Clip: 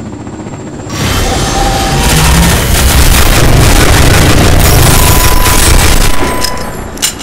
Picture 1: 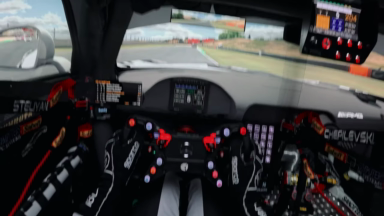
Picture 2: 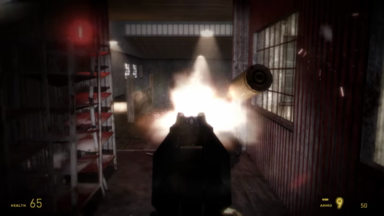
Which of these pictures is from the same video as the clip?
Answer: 2